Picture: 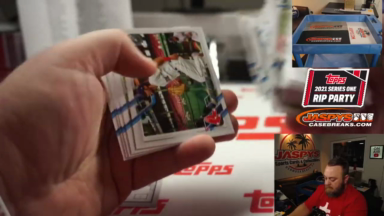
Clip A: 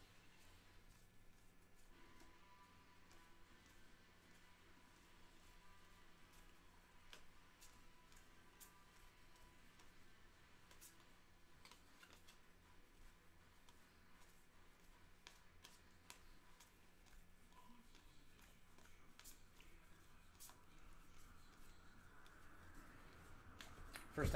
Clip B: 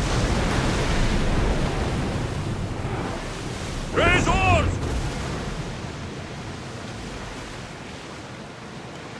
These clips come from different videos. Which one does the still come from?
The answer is A